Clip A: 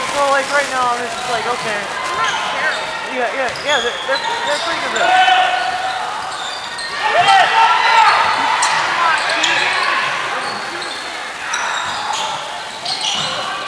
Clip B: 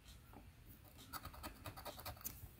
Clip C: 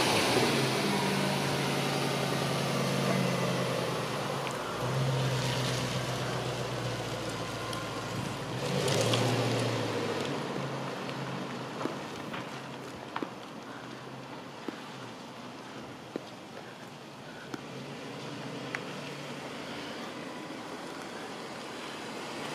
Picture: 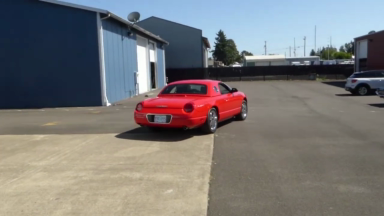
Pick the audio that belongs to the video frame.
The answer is C